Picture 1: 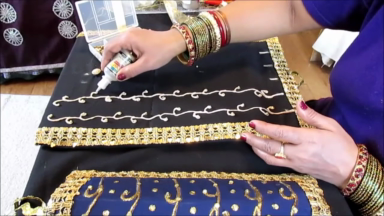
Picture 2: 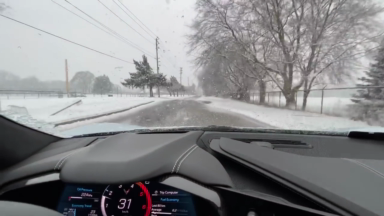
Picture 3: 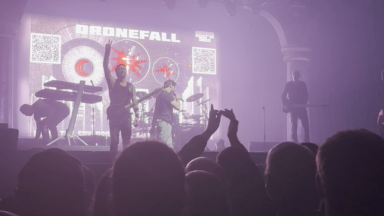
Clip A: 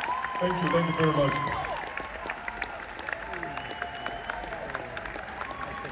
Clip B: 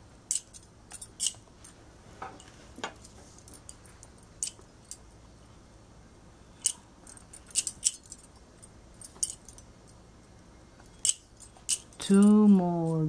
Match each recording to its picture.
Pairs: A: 3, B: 1